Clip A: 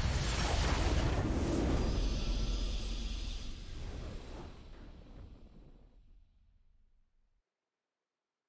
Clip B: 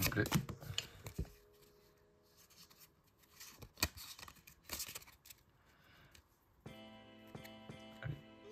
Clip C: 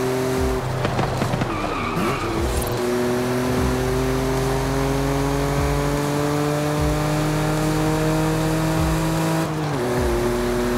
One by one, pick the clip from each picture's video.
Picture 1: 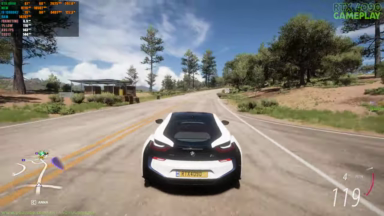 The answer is C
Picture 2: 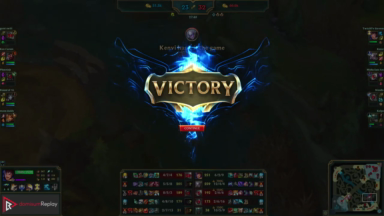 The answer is A